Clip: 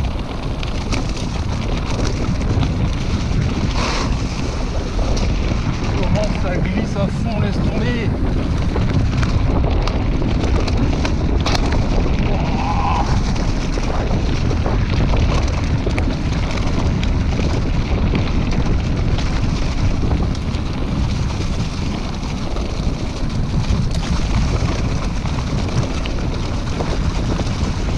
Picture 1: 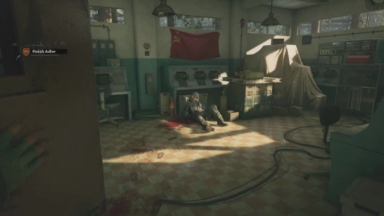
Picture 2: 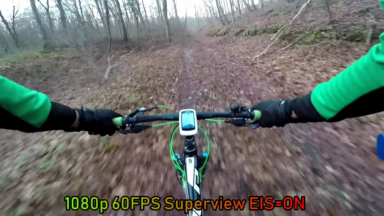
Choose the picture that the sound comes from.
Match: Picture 2